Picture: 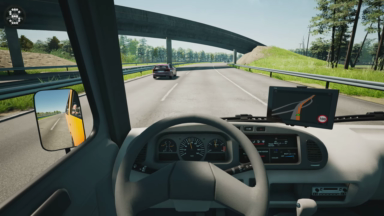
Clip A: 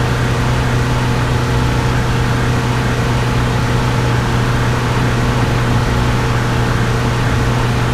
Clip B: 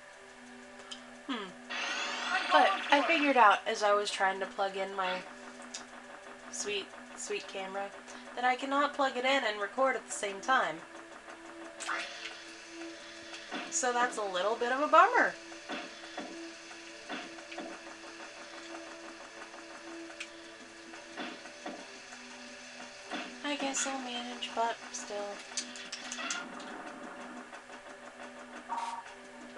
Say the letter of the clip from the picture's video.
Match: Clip A